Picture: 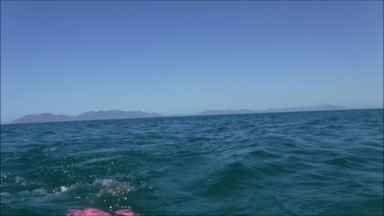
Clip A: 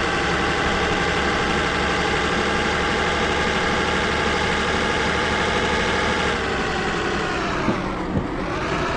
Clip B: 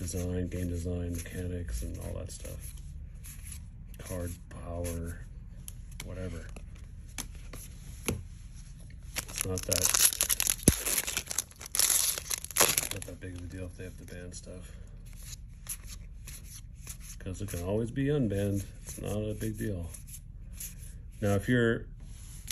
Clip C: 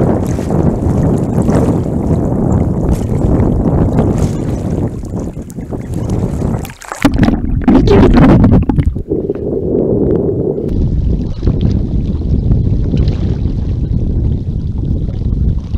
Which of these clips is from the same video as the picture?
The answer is C